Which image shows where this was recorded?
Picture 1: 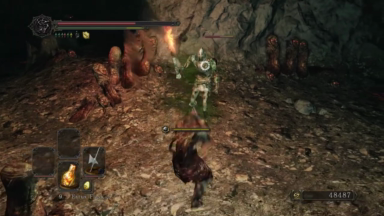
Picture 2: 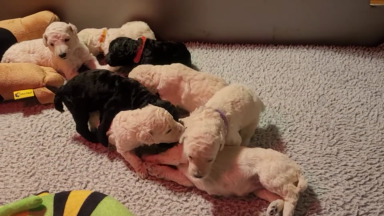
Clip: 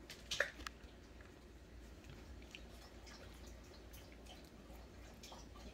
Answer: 2